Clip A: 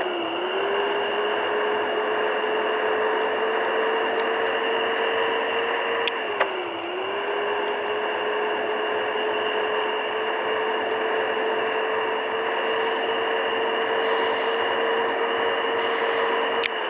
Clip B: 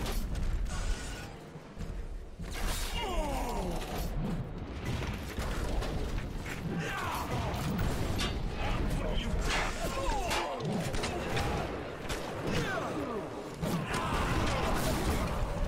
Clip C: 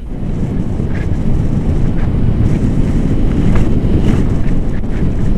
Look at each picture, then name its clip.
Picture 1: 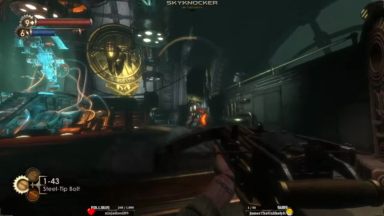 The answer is B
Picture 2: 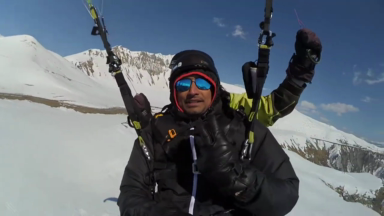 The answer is C